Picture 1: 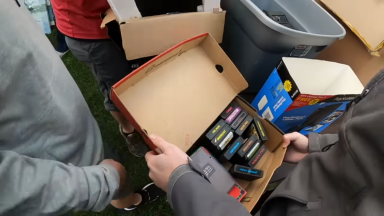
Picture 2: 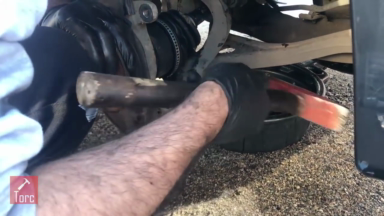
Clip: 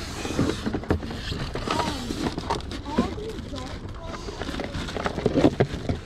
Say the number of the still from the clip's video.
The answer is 1